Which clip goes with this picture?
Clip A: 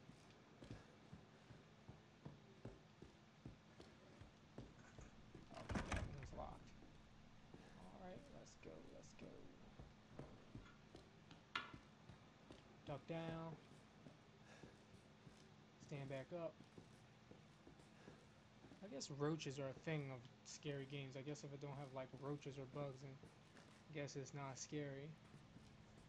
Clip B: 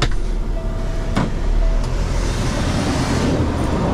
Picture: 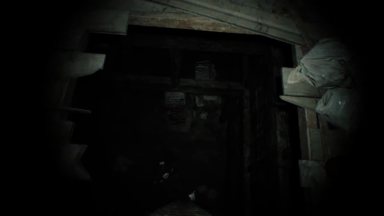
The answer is A